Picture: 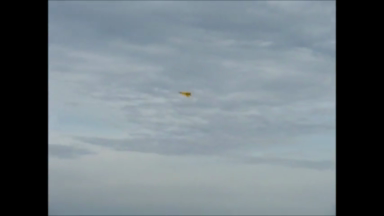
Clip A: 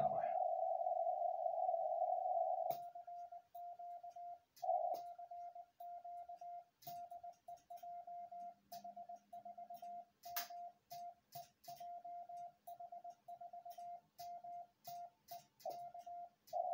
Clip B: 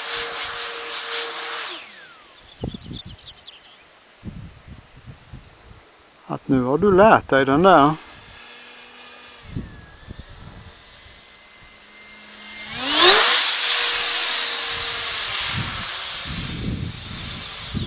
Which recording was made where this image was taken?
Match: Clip B